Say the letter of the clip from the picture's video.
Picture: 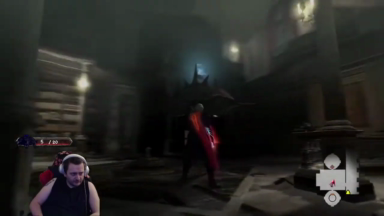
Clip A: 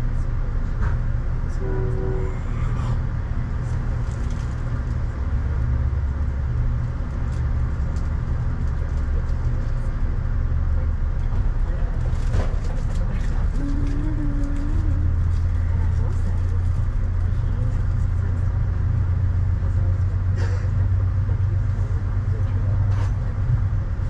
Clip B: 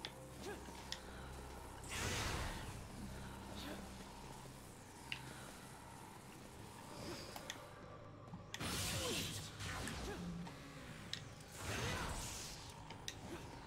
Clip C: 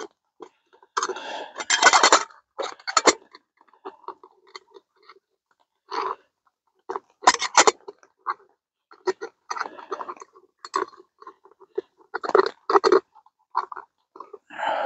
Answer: B